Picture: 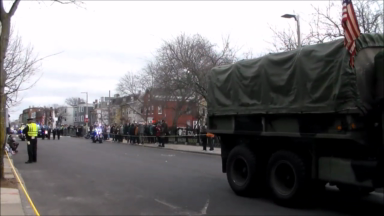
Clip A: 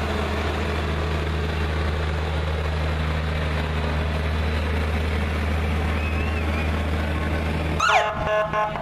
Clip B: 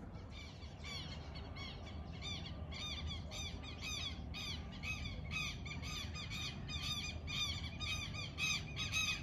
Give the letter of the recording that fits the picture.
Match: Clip A